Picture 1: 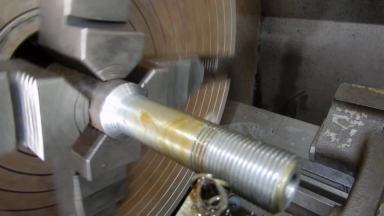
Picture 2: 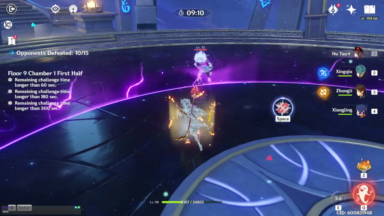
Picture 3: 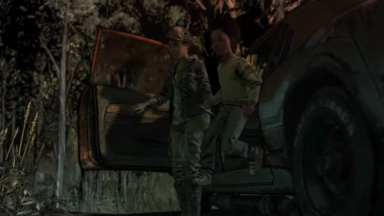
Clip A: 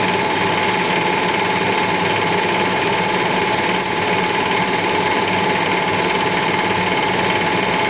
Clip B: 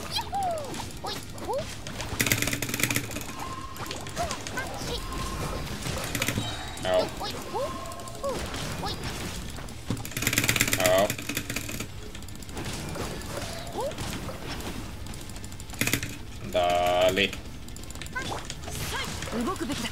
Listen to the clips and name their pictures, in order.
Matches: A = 1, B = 2